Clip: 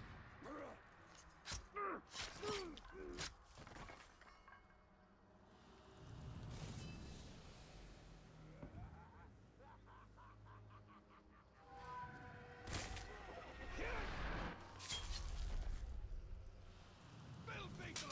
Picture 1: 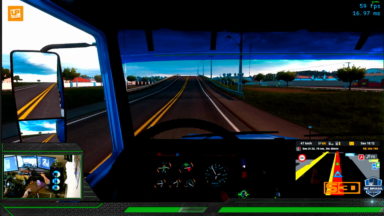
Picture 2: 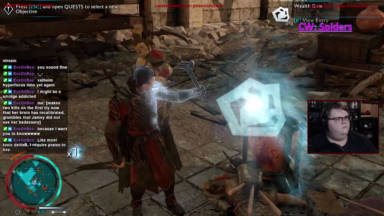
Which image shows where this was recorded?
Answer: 2